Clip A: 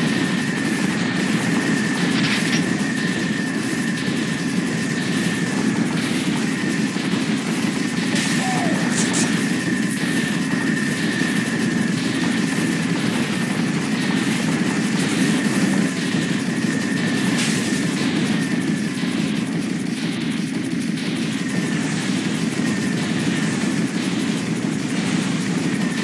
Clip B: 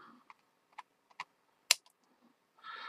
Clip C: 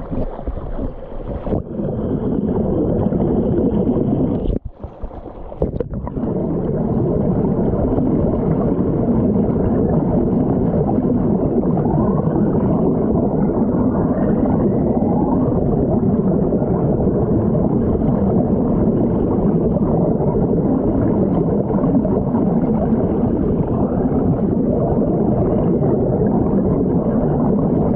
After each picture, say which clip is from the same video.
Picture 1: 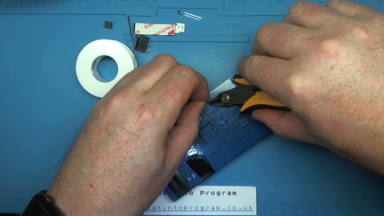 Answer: B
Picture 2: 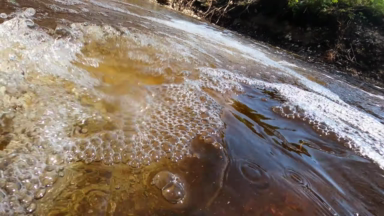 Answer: C